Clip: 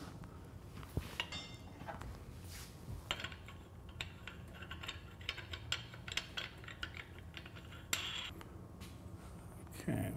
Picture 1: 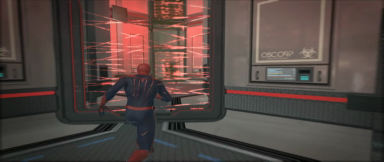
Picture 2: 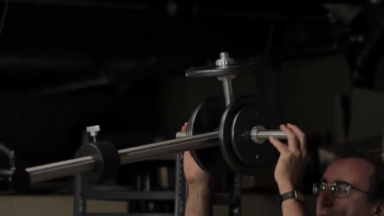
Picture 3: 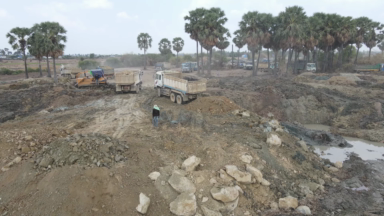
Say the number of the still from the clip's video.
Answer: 2